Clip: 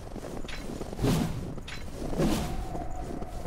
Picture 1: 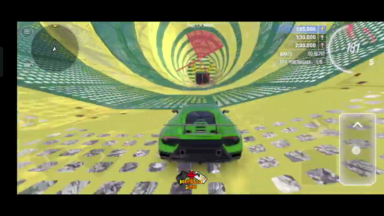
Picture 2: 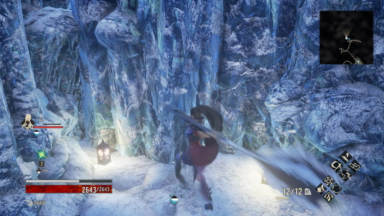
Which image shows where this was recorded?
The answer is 2